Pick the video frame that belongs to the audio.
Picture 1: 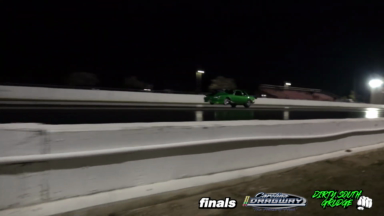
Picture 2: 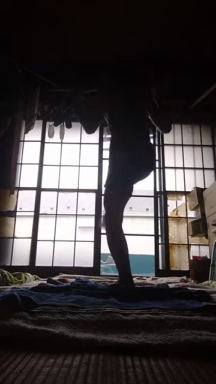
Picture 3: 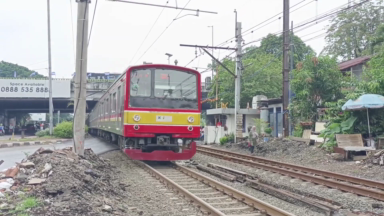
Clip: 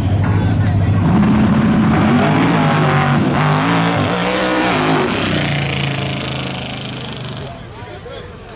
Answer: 1